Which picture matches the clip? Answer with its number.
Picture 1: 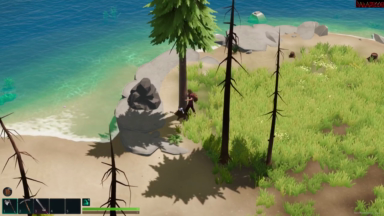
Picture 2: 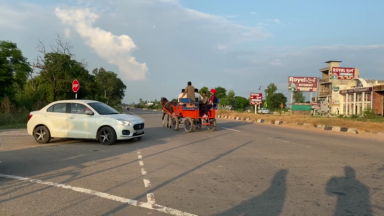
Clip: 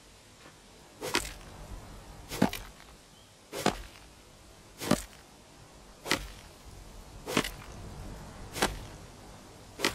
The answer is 1